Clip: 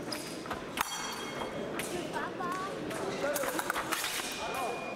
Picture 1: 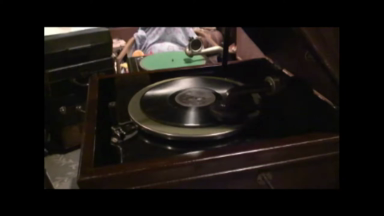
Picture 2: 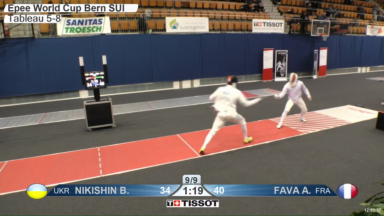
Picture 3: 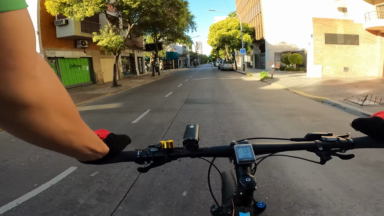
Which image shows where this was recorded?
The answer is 2